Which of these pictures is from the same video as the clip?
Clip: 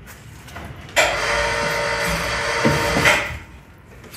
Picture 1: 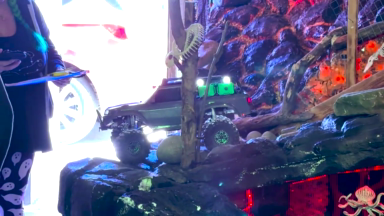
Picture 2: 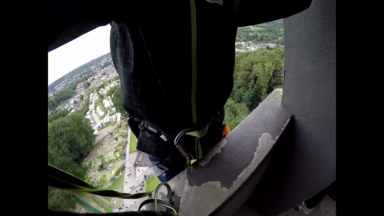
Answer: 1